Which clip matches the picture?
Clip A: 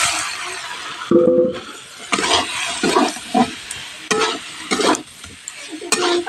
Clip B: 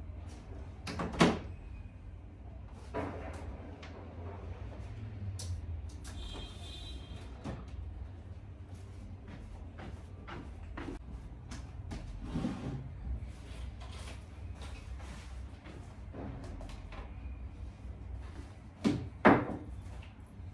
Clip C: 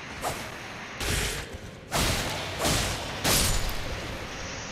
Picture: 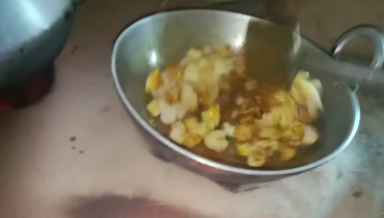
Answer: A